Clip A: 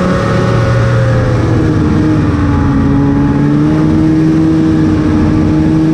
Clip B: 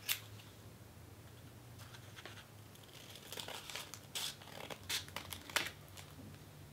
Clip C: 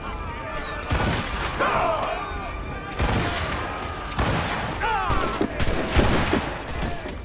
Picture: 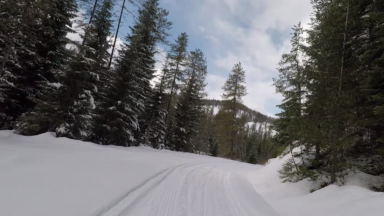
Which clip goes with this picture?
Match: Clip A